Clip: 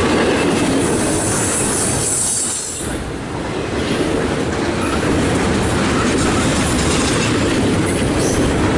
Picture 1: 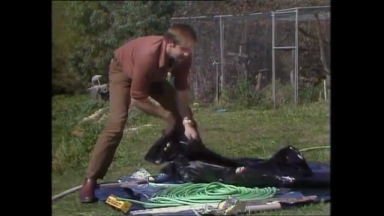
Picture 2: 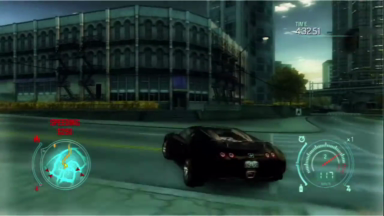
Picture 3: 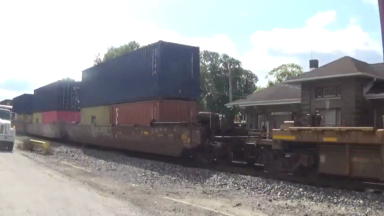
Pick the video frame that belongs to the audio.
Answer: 3